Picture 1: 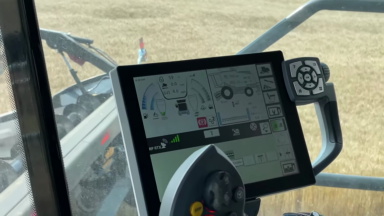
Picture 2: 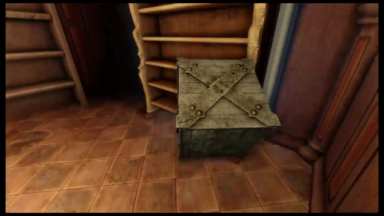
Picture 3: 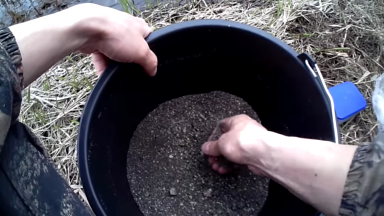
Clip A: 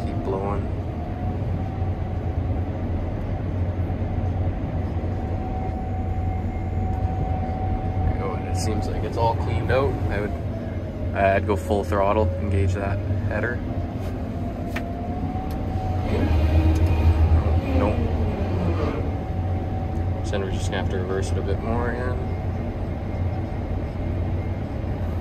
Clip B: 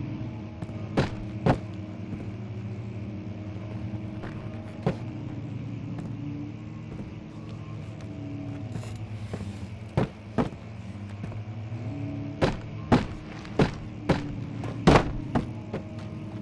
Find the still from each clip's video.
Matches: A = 1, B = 2